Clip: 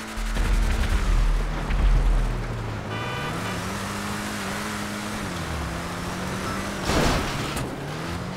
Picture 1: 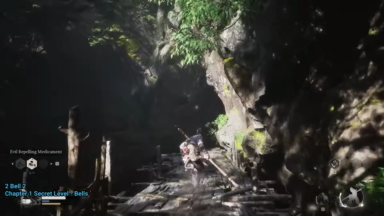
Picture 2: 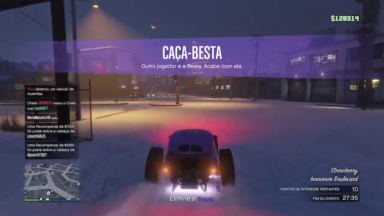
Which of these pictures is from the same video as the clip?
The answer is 2